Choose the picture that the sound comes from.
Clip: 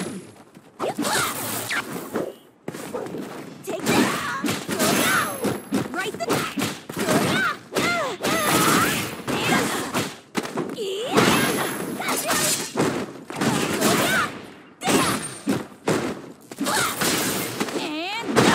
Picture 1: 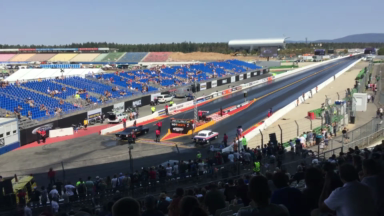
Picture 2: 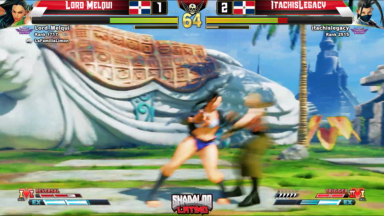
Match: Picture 2